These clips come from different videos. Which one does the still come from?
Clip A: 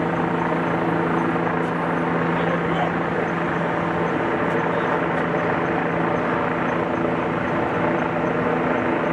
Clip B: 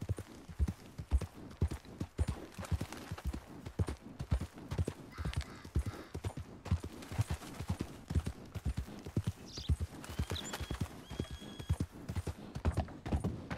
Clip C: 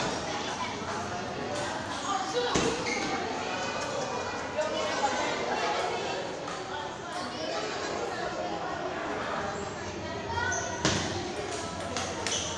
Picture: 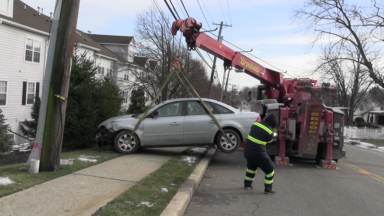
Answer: A